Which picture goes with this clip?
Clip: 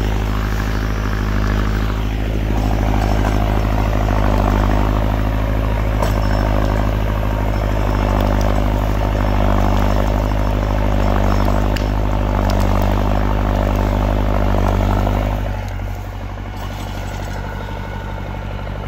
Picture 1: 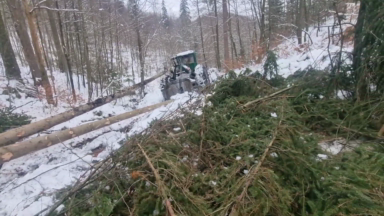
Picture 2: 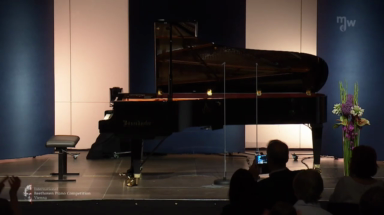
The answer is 1